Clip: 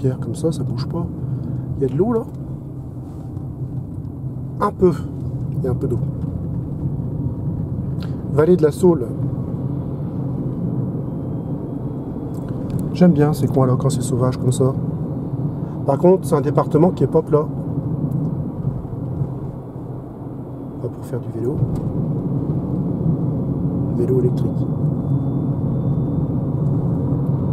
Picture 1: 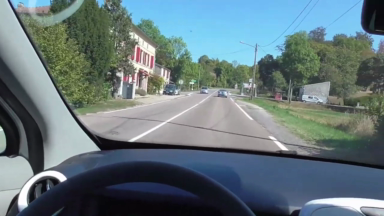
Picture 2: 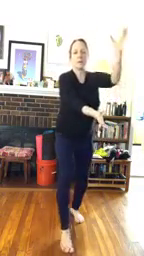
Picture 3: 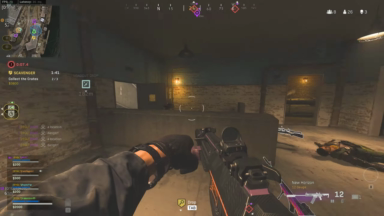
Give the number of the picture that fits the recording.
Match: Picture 1